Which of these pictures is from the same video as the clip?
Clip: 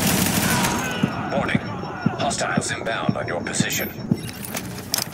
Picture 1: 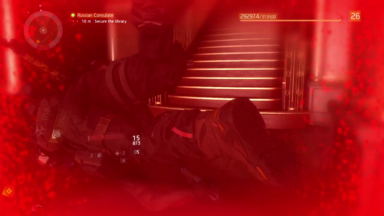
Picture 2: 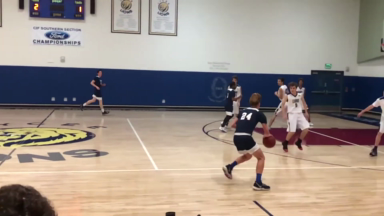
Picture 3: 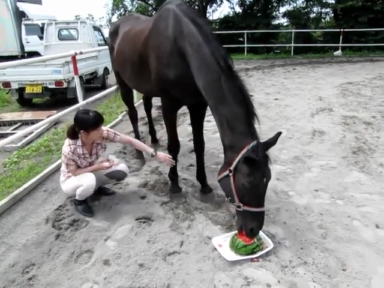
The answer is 1